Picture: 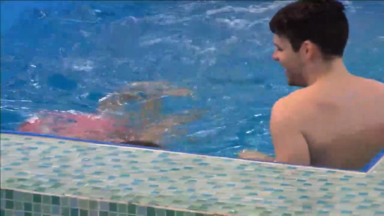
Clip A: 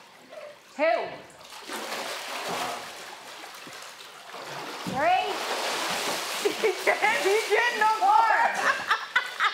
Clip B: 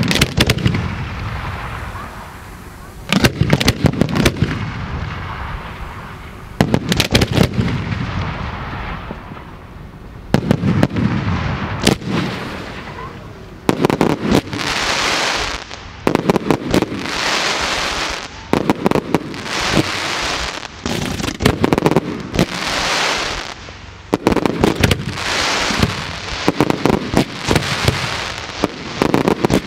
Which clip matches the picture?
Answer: A